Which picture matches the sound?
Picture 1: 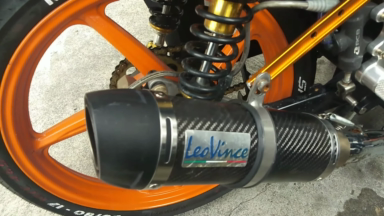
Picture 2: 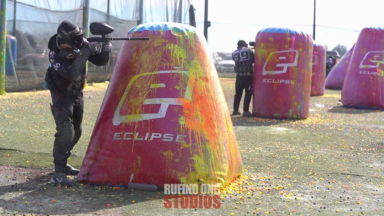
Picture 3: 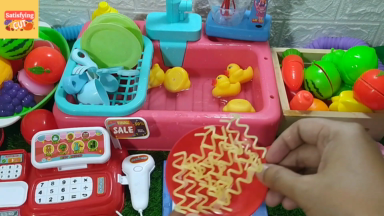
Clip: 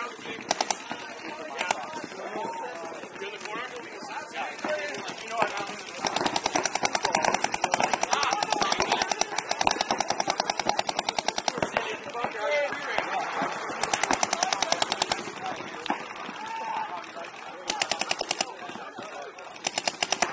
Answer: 2